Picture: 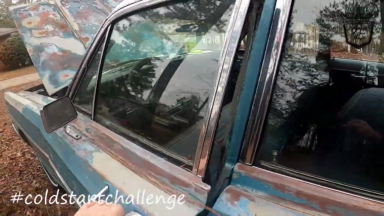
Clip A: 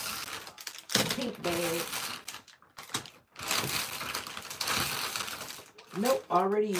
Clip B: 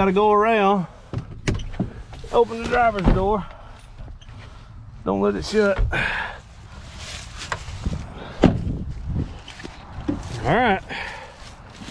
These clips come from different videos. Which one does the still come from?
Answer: B